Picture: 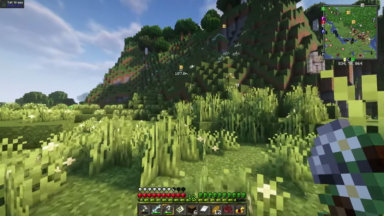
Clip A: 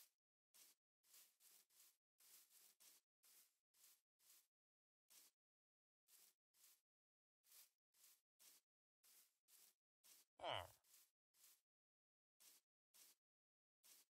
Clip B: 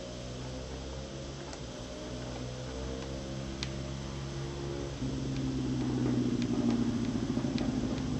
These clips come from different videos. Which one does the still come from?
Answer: A